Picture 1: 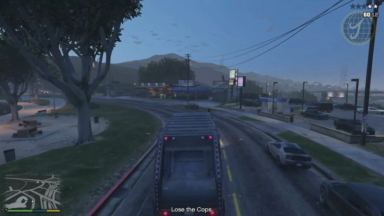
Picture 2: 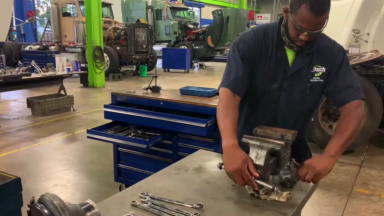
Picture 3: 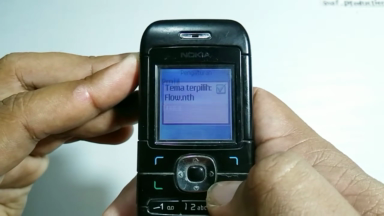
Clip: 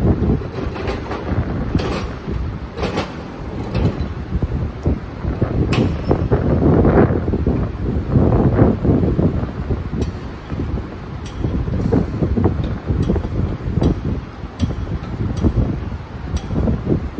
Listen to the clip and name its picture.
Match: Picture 2